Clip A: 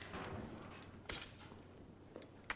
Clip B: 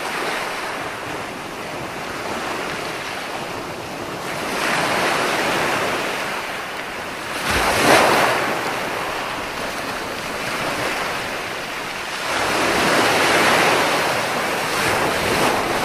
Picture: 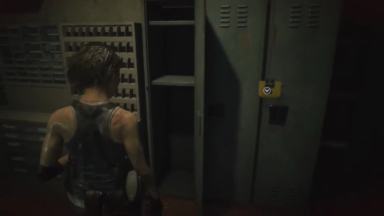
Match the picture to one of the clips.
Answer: A